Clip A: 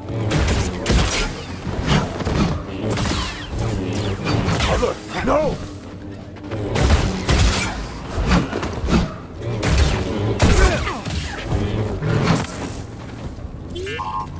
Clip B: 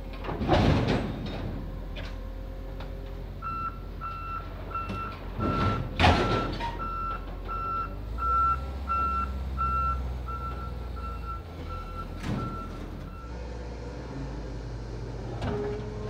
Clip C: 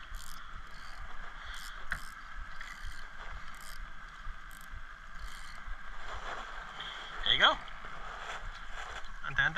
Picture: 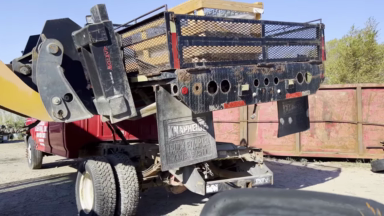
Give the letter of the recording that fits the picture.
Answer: B